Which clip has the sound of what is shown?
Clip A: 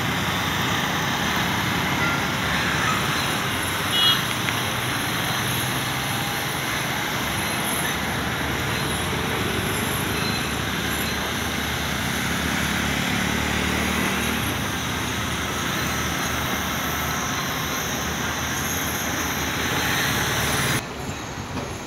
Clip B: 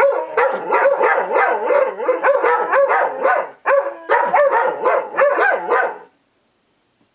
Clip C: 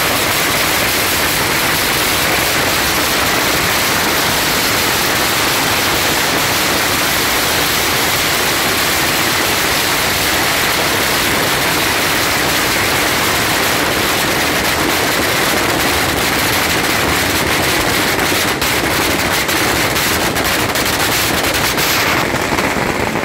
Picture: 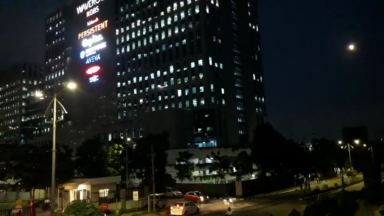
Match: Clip A